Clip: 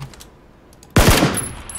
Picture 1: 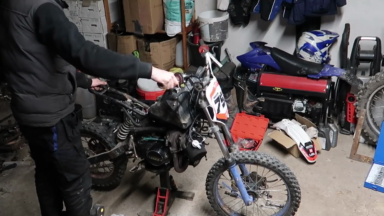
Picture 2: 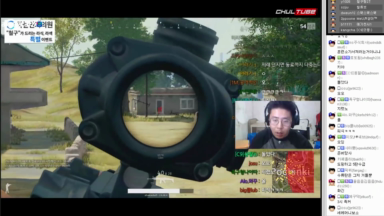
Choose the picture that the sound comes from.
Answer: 2